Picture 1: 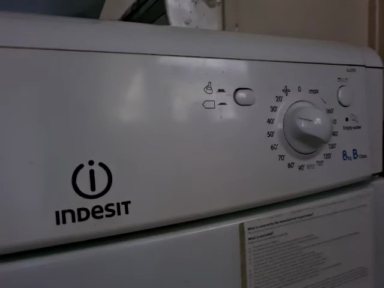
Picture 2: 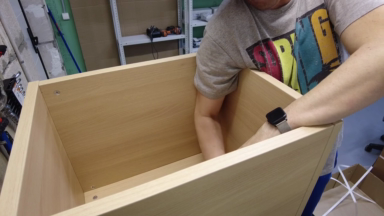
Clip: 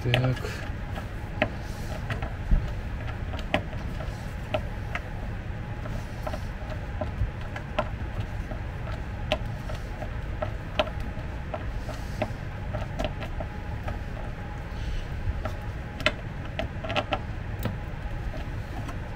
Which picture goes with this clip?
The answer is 2